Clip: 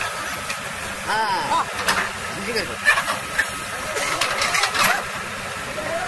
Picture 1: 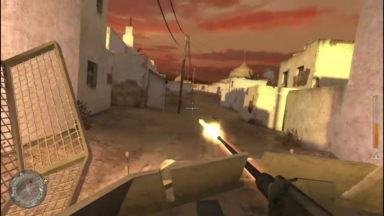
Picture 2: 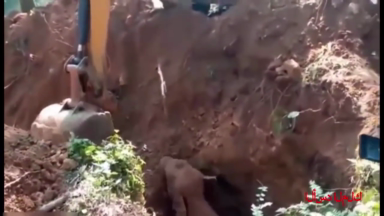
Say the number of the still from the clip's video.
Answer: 2